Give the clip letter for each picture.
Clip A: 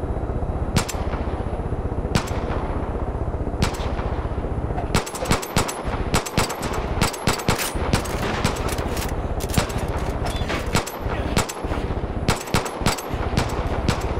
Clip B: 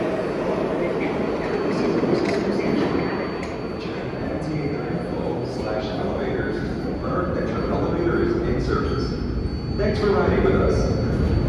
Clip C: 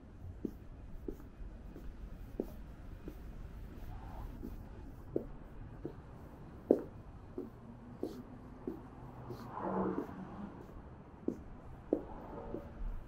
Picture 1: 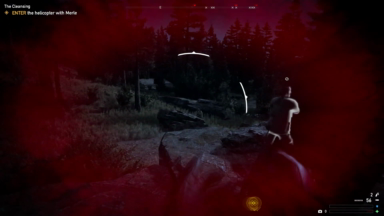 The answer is A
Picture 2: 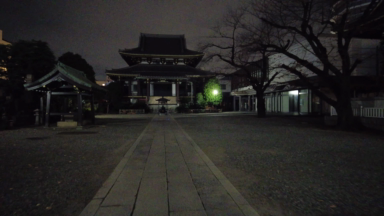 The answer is C